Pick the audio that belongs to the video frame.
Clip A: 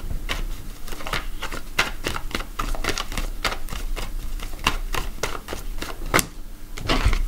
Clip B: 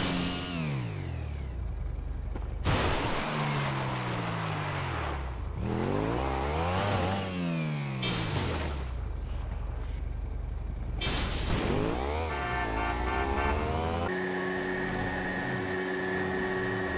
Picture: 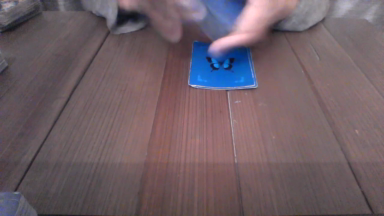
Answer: A